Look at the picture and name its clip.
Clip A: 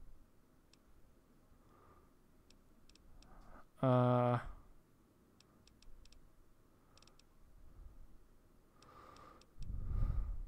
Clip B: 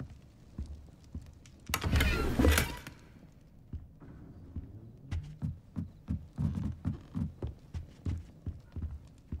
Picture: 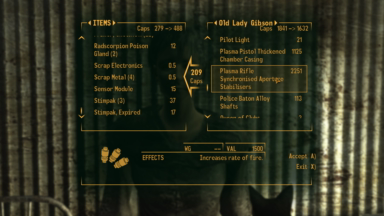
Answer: A